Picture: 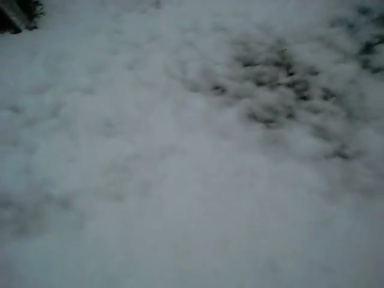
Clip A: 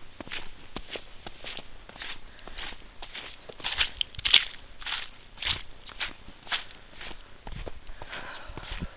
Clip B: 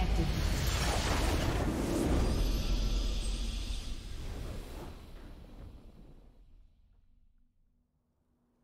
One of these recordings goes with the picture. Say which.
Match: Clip A